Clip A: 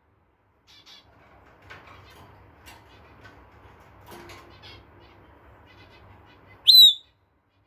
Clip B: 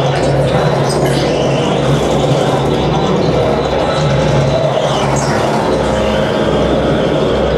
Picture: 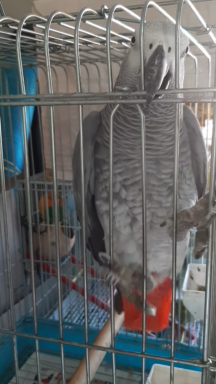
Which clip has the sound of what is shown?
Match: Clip A